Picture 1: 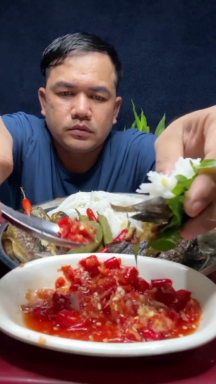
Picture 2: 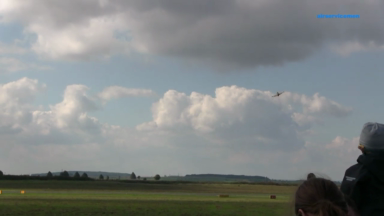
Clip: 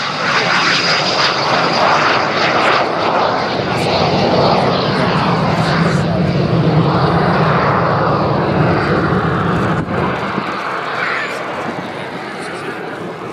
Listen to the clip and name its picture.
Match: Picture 2